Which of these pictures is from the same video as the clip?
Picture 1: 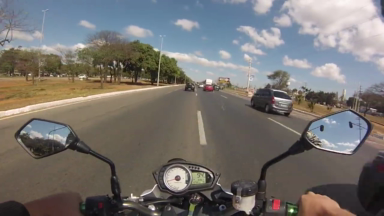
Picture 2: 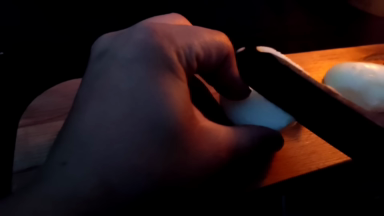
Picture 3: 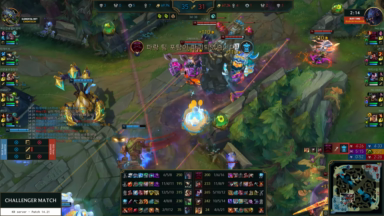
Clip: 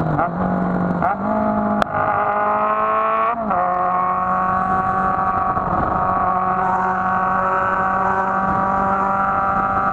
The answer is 1